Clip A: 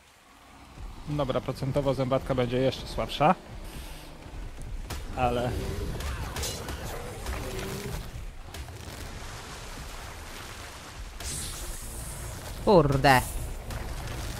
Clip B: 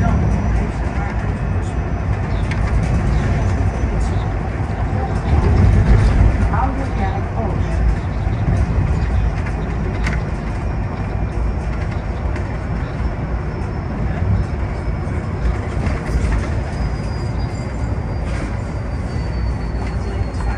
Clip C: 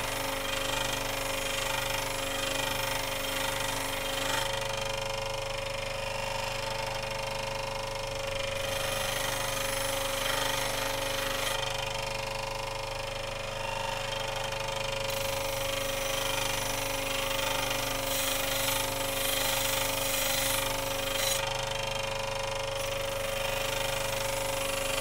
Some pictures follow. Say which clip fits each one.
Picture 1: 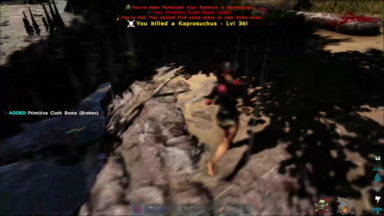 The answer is A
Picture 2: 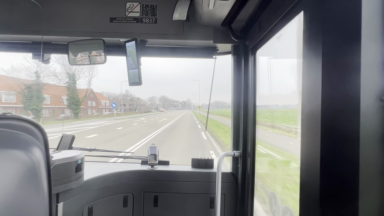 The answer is B